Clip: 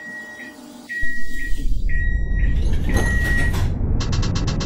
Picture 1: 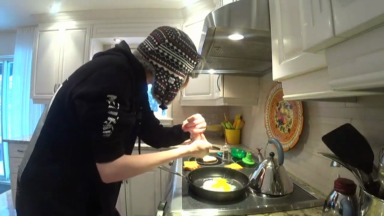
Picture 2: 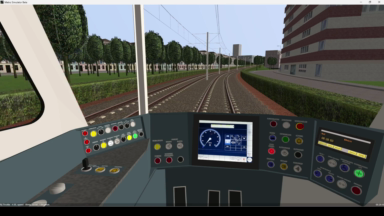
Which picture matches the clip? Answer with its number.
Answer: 2